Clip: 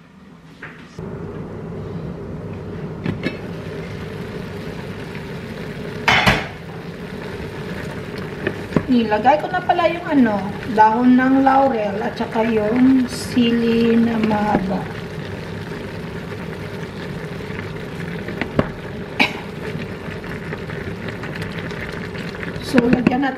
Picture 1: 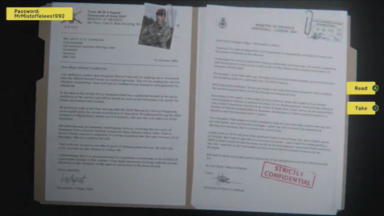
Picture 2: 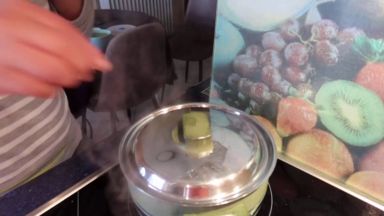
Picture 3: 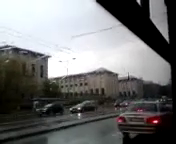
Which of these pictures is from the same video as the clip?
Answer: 2